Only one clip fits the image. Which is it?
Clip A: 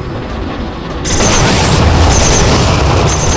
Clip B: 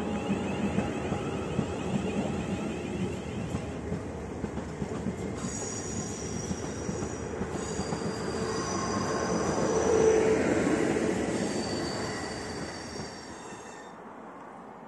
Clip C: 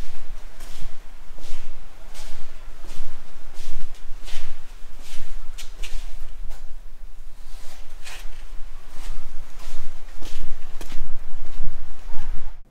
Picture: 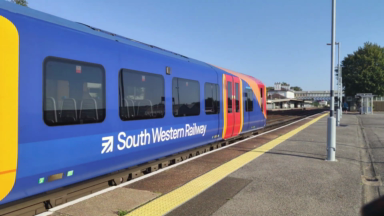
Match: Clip B